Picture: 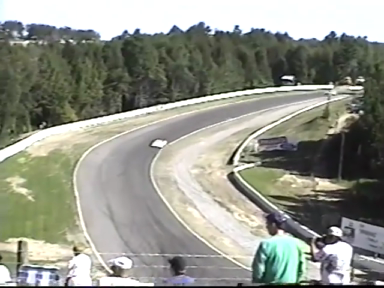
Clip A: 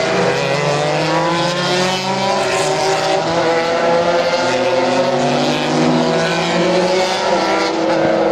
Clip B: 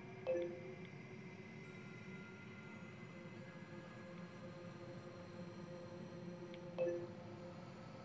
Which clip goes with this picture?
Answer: A